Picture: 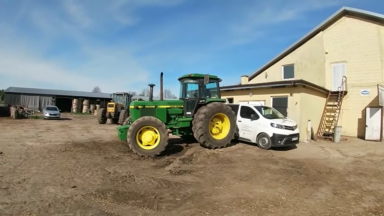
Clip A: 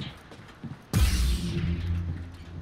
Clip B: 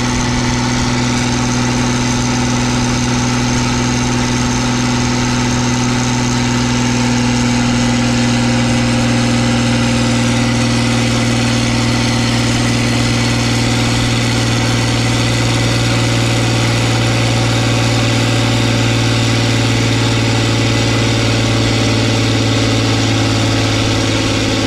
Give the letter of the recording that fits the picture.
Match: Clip B